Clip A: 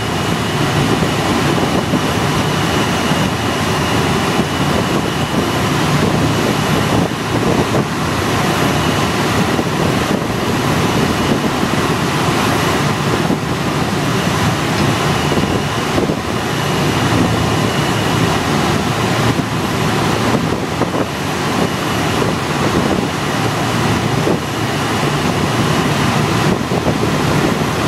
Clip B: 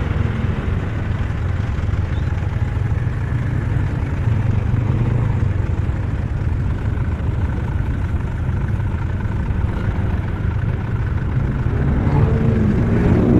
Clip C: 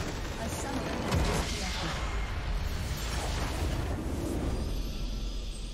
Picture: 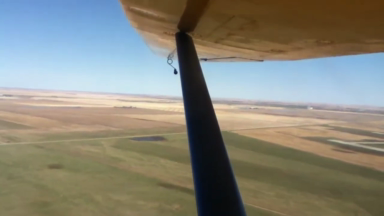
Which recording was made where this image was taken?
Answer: A